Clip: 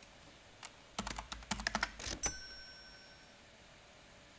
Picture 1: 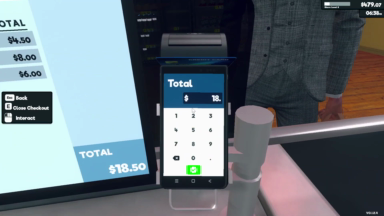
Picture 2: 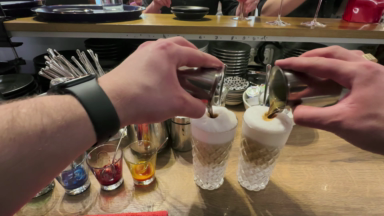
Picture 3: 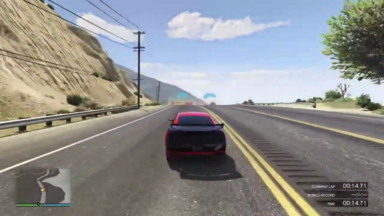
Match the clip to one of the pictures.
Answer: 1